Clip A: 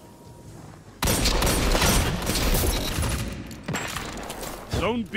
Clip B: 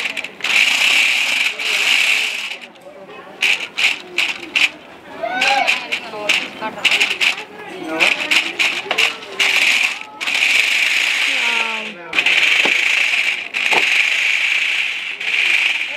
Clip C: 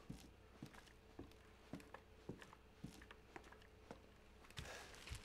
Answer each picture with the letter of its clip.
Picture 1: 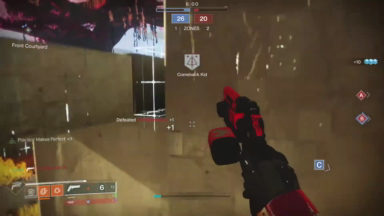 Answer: A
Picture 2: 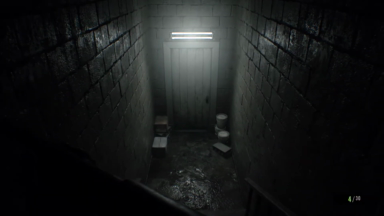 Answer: C